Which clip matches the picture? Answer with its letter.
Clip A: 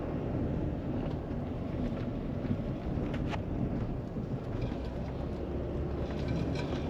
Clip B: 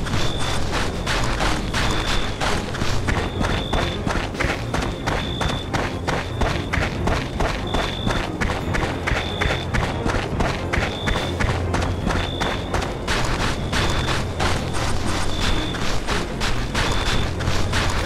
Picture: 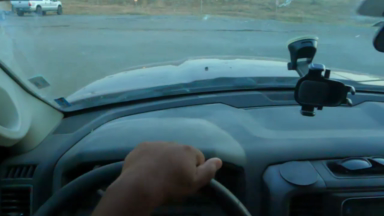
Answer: A